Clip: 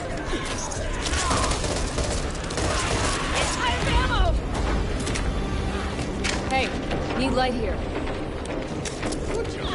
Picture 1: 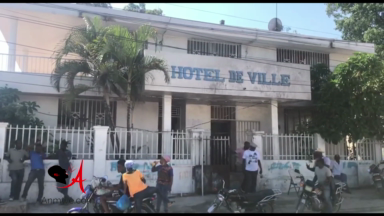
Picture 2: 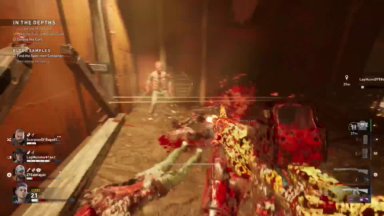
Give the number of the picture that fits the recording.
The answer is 2